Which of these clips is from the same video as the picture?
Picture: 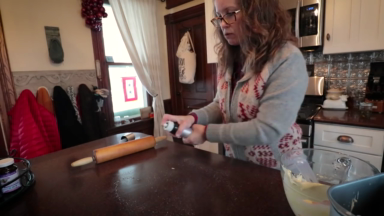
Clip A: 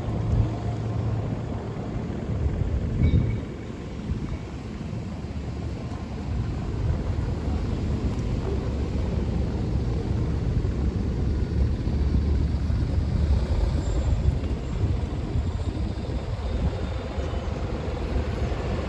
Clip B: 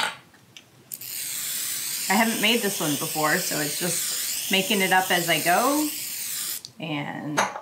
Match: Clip B